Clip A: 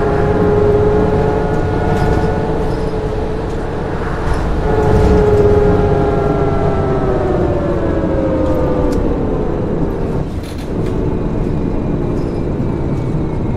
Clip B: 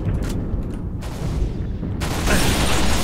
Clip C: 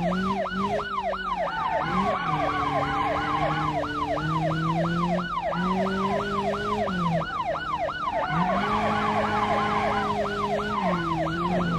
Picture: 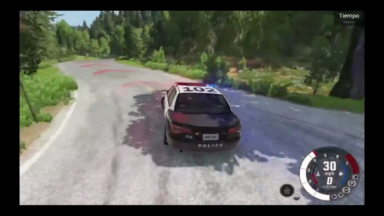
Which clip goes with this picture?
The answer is C